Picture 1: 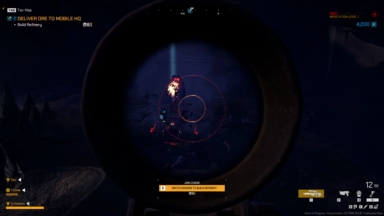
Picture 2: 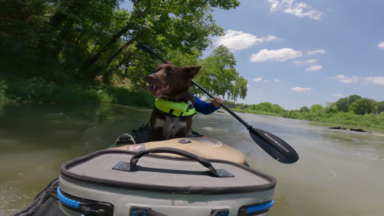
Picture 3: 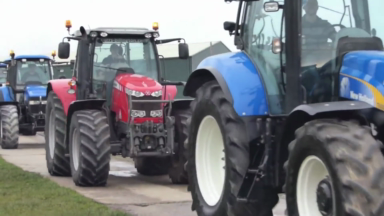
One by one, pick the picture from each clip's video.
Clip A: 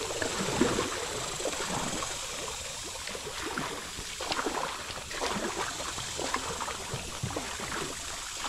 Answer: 2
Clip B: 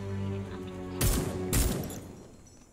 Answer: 1